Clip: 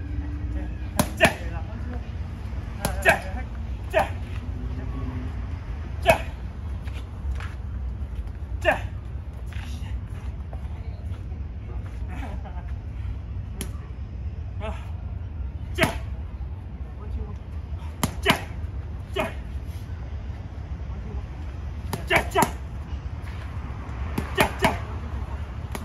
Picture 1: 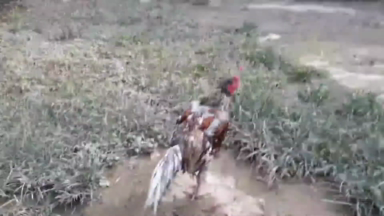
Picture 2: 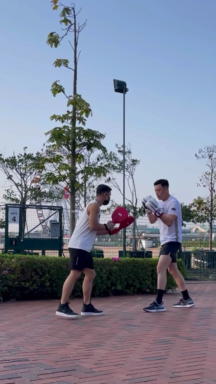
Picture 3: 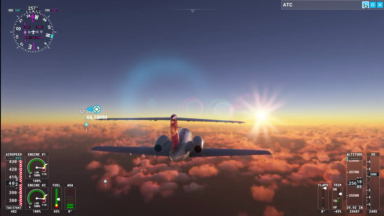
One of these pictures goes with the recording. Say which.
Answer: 2